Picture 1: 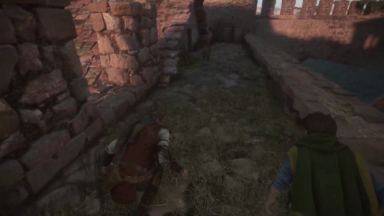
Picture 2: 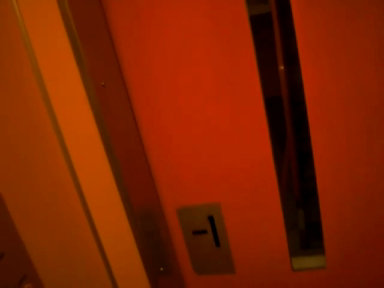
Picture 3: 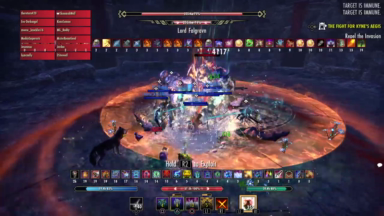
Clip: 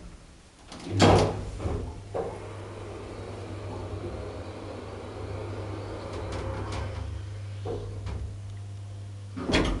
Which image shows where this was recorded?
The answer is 2